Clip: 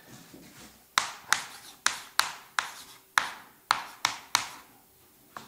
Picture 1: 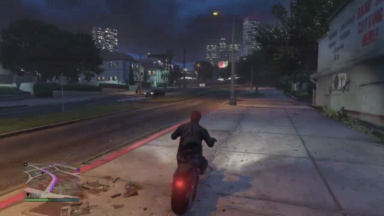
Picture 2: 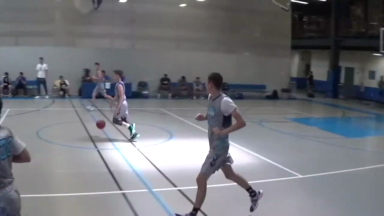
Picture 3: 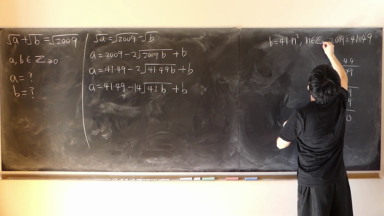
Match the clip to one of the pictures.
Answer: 3